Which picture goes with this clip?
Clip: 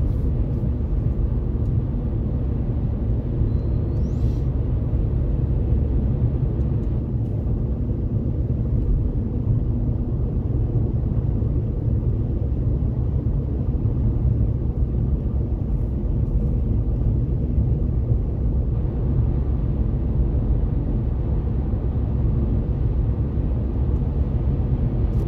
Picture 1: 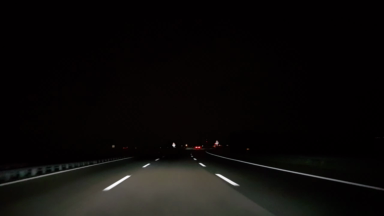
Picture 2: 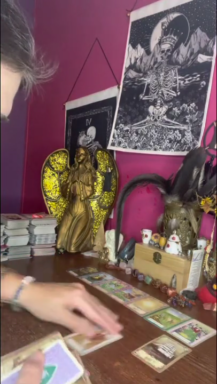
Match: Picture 1